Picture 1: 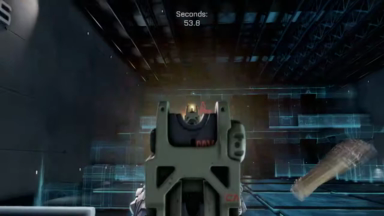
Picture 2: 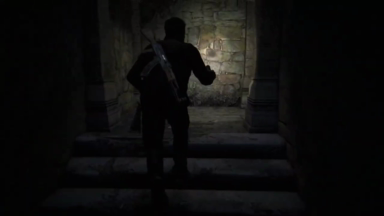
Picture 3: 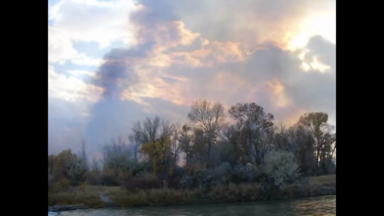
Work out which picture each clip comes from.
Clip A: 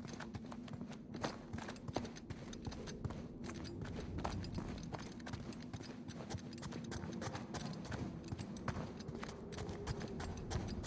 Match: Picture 2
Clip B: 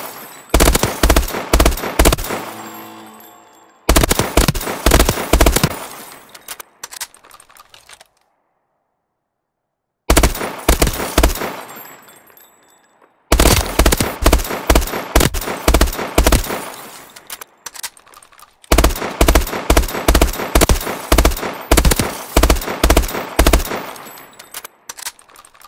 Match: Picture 1